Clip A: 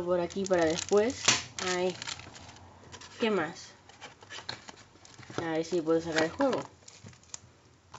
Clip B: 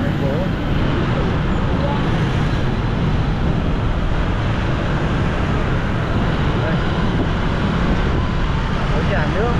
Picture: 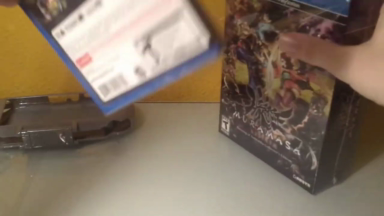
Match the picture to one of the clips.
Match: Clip A